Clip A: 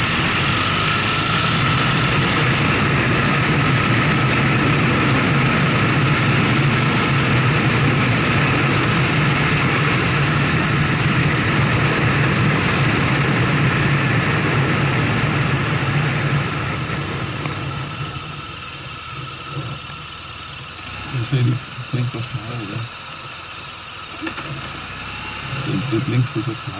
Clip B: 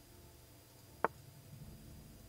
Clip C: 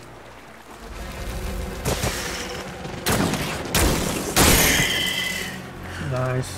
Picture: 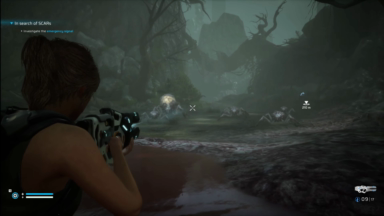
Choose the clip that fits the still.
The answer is C